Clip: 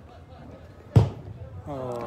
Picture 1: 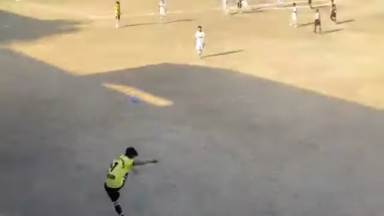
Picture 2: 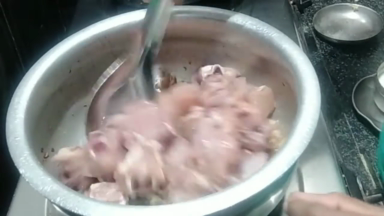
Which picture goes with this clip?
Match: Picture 1